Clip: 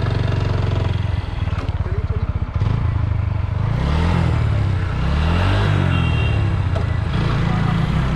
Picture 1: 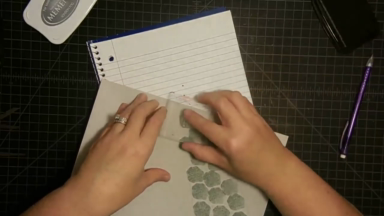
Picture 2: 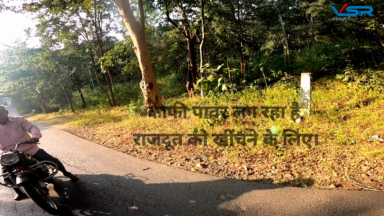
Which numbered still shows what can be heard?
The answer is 2